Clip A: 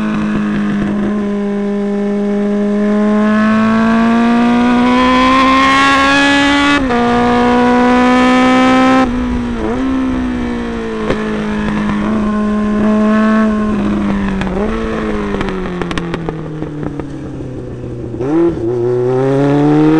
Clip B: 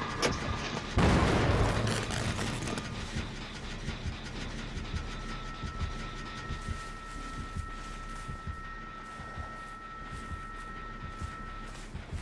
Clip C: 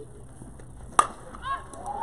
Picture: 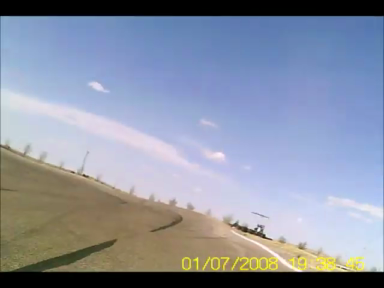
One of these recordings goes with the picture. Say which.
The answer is A